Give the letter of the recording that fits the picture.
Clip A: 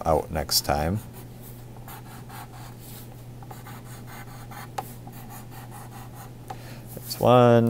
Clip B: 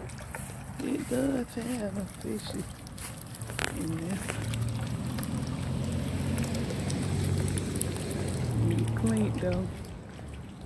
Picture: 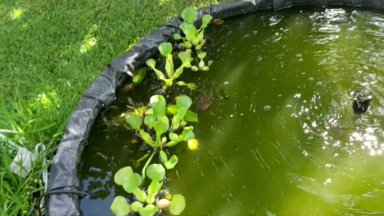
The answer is B